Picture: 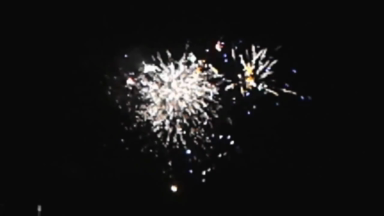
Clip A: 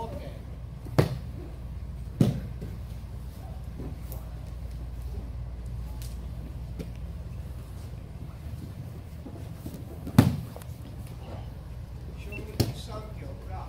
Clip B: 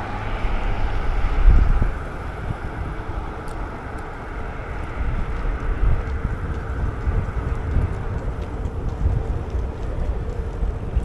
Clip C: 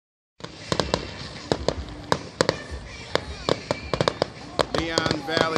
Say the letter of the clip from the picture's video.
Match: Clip C